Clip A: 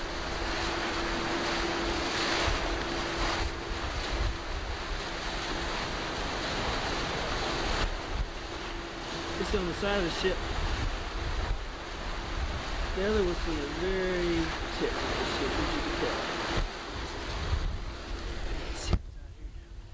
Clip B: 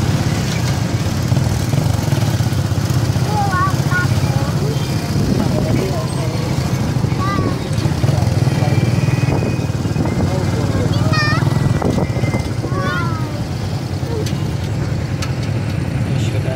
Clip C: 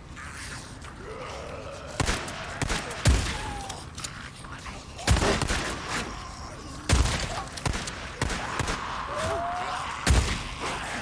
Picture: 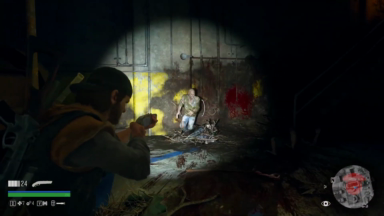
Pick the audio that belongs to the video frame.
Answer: C